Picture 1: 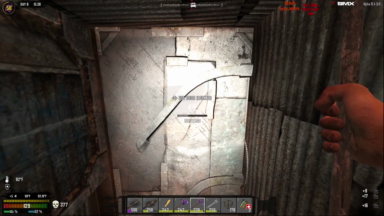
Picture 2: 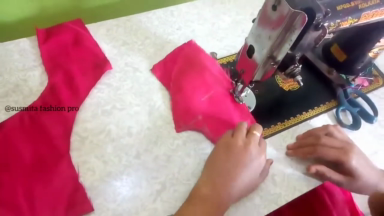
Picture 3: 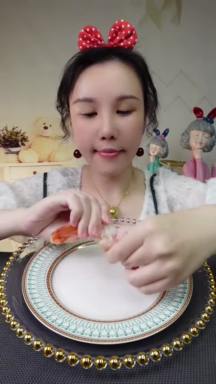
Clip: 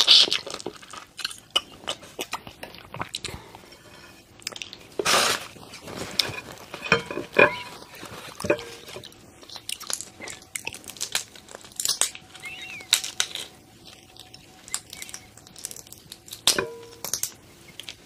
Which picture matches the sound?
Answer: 3